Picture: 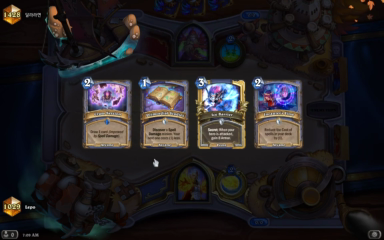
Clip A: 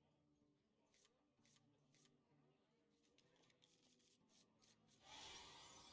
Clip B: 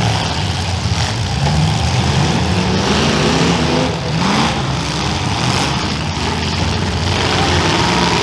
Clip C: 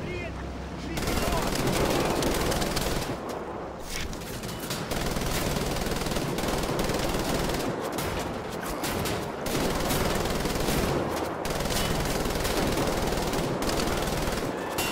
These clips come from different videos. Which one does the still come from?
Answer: A